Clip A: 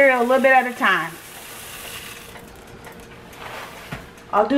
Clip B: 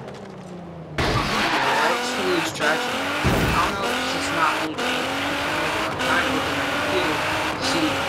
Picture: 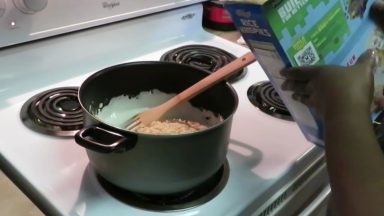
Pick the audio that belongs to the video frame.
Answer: A